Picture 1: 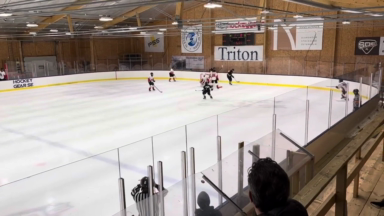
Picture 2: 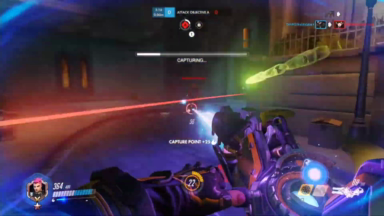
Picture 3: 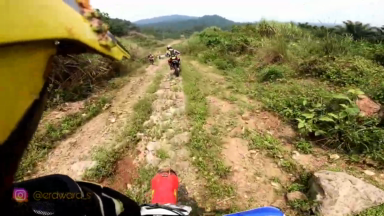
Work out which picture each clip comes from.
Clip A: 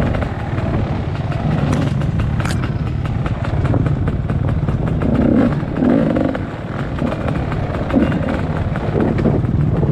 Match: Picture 3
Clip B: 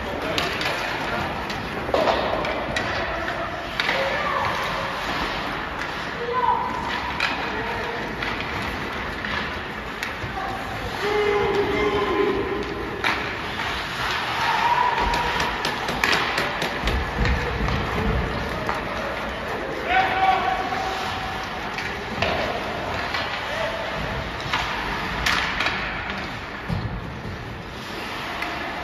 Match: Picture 1